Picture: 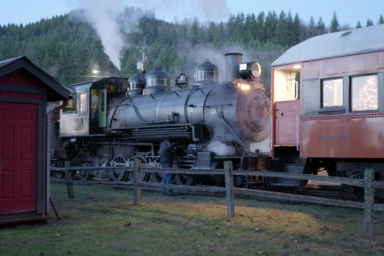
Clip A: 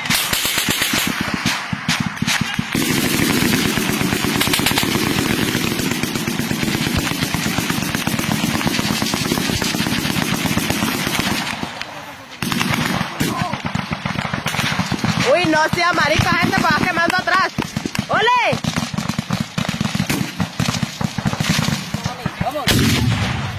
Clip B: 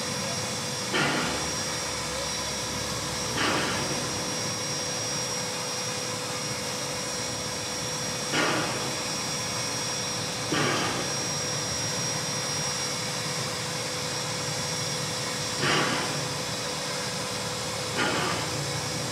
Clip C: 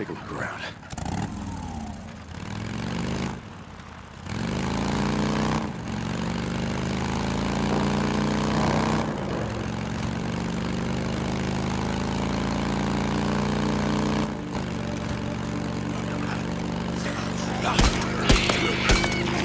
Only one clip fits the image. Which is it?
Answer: B